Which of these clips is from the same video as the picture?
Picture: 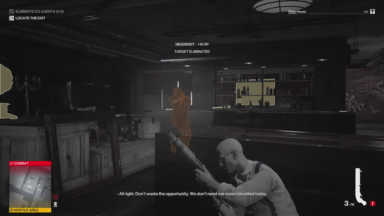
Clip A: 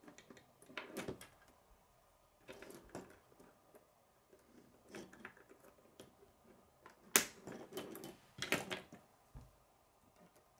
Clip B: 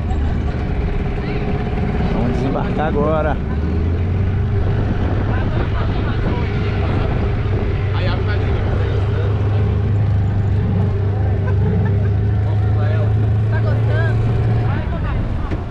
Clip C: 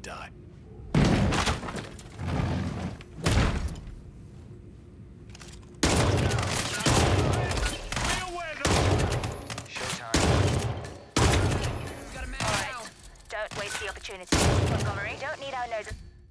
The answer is C